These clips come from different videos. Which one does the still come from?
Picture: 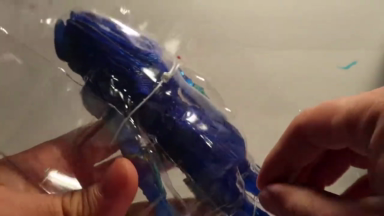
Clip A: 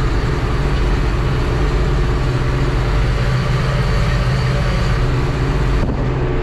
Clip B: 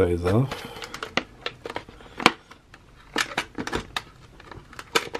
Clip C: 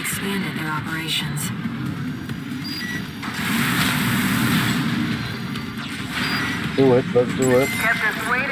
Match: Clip B